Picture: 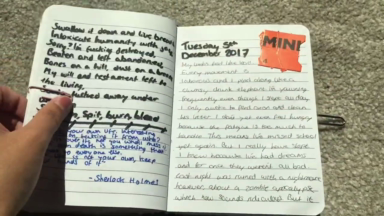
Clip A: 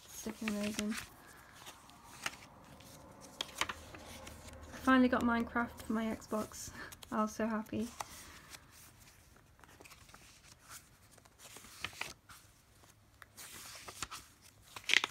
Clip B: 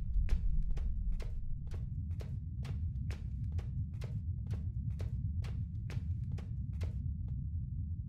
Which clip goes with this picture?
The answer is A